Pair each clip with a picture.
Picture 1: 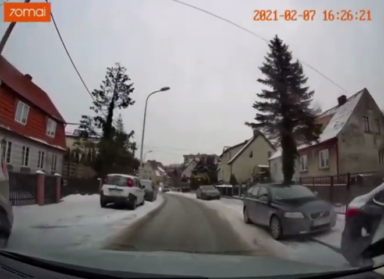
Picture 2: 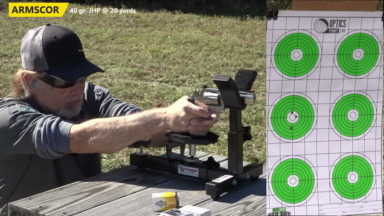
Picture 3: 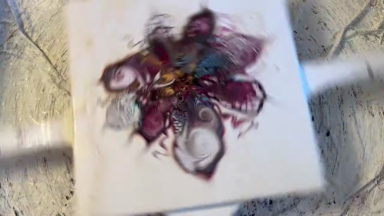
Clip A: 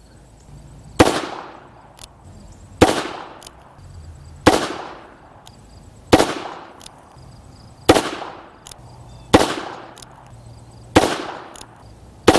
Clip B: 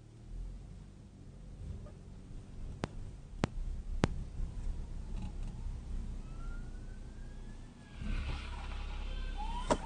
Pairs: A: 2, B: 1